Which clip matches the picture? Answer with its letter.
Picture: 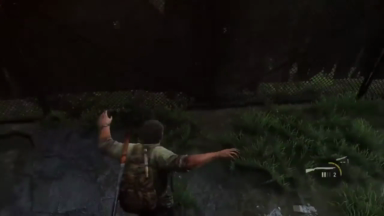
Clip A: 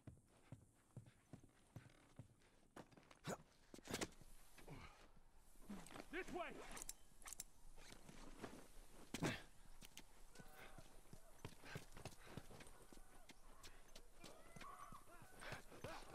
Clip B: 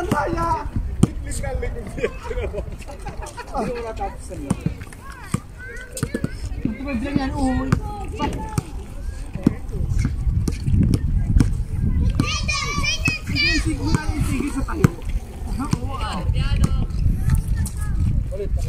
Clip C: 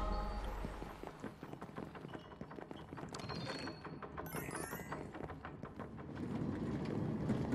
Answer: A